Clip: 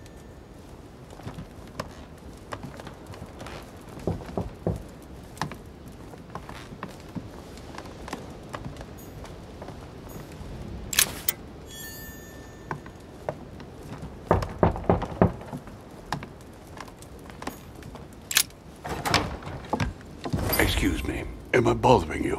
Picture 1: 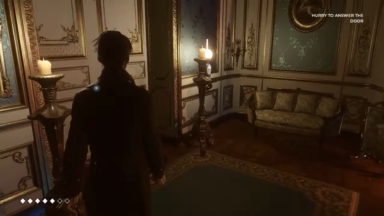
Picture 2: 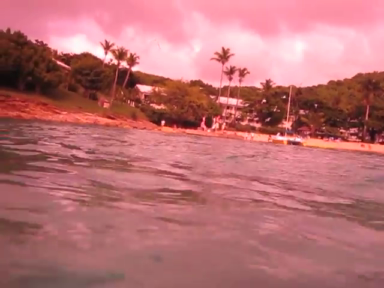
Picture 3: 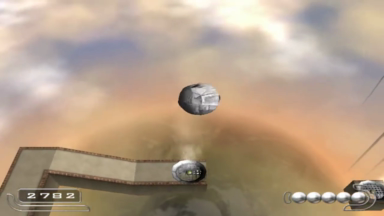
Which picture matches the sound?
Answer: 1